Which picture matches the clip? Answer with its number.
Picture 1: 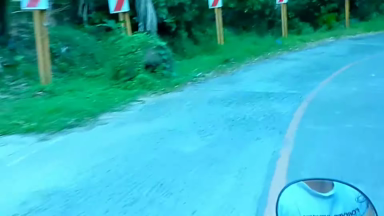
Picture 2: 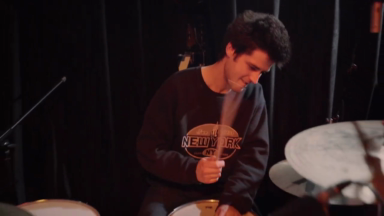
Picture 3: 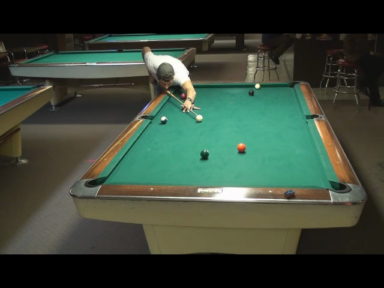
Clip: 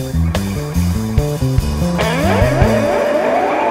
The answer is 2